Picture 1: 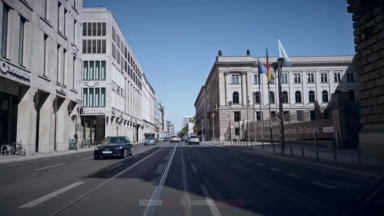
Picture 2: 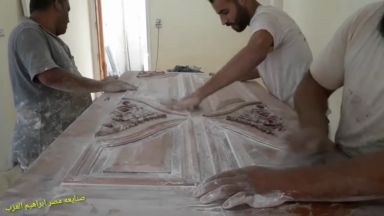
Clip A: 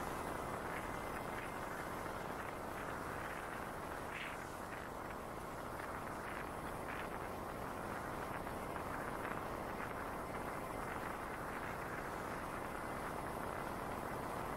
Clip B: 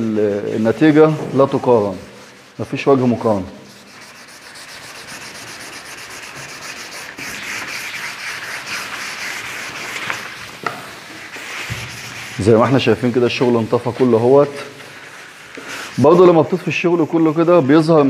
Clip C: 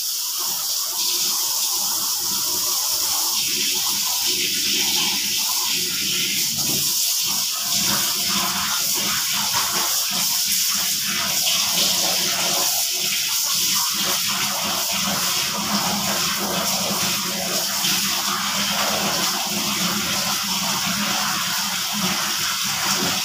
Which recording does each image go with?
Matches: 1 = A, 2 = B